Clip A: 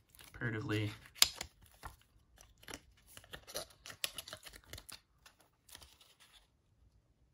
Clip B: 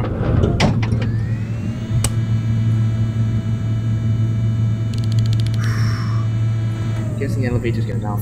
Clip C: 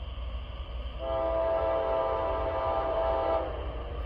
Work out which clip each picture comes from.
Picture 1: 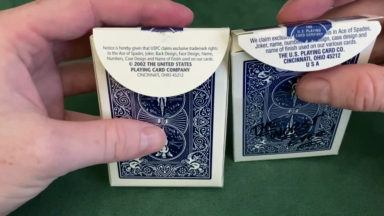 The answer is A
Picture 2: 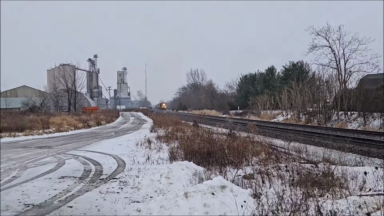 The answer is C